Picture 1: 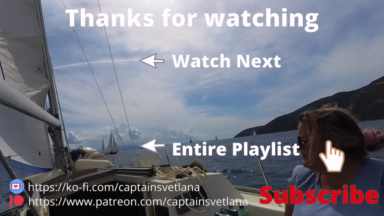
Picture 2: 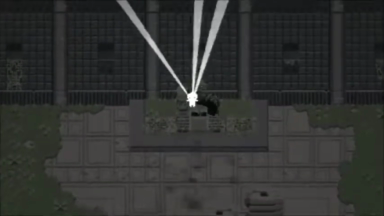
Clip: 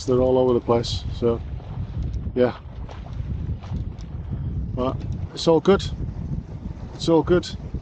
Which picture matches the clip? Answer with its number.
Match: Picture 1